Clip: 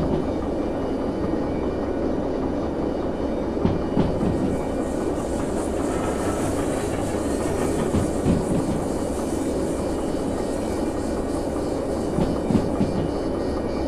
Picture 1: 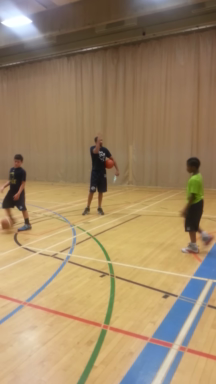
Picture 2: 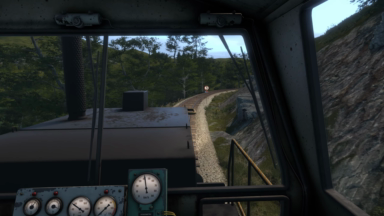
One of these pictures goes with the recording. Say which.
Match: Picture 2